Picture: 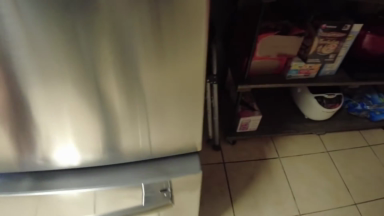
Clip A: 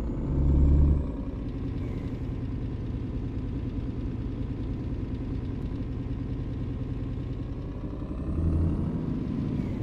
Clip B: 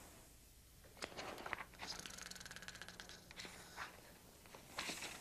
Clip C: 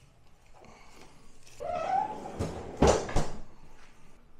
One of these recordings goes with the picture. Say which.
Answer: C